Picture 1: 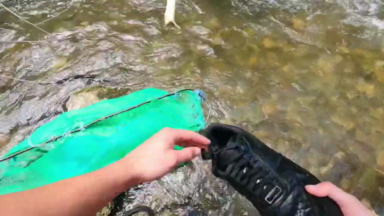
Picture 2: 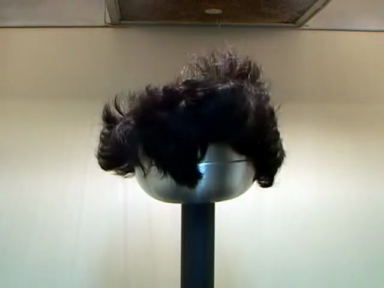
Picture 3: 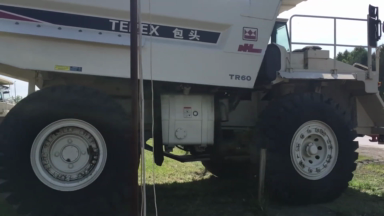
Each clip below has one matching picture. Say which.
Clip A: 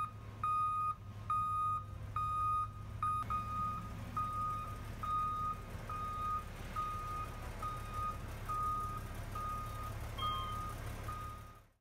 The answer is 3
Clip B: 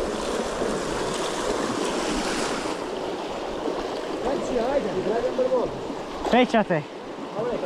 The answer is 1